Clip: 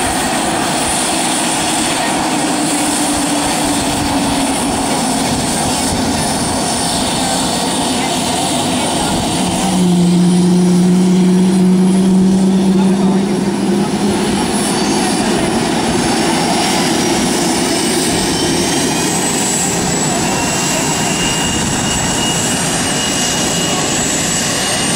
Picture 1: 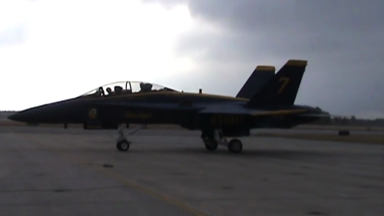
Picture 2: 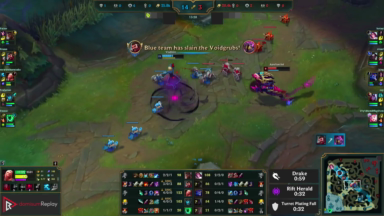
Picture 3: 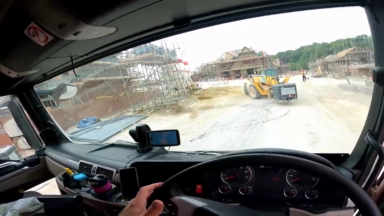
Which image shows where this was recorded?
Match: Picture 1